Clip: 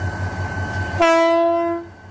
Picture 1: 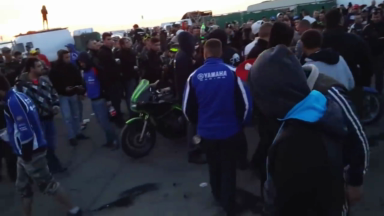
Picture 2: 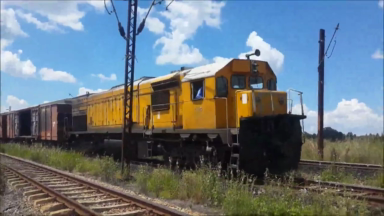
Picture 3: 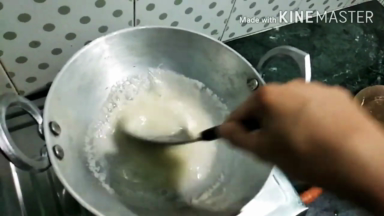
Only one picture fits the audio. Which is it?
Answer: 2